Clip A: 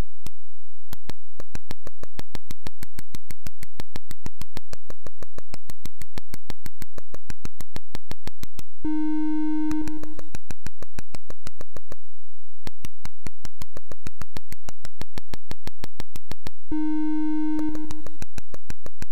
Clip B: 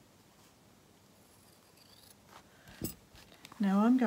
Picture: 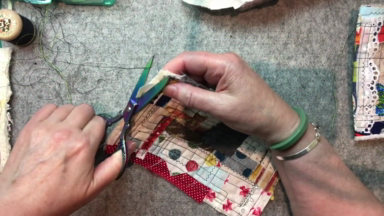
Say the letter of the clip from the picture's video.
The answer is B